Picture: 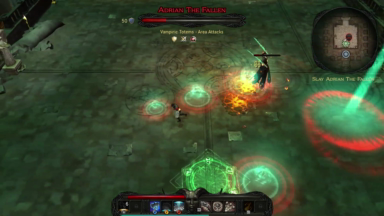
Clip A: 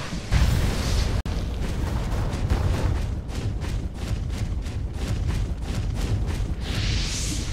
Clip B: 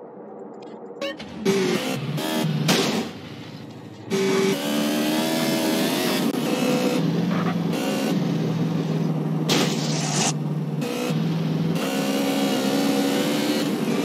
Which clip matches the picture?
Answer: A